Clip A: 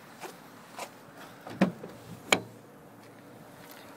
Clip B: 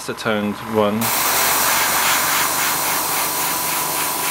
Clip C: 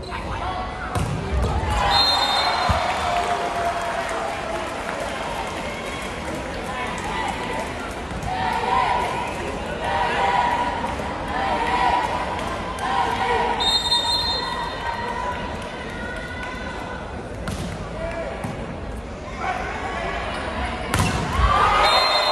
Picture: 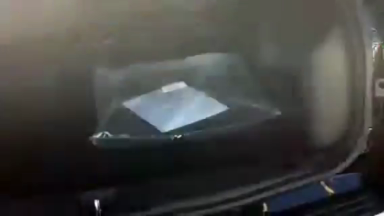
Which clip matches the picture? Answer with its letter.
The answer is A